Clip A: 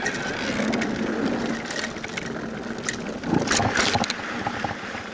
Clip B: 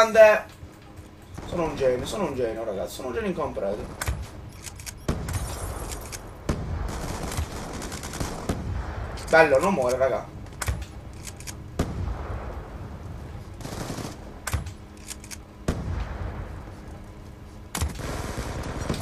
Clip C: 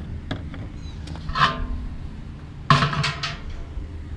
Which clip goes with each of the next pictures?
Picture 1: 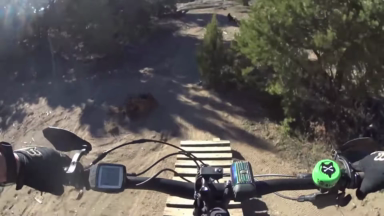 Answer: A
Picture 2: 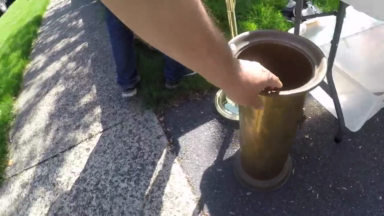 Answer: C